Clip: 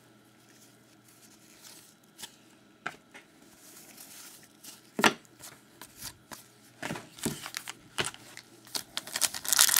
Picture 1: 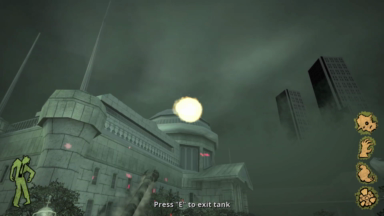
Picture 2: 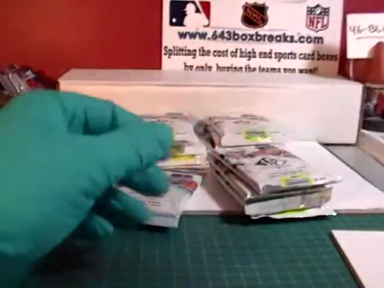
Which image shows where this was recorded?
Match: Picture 2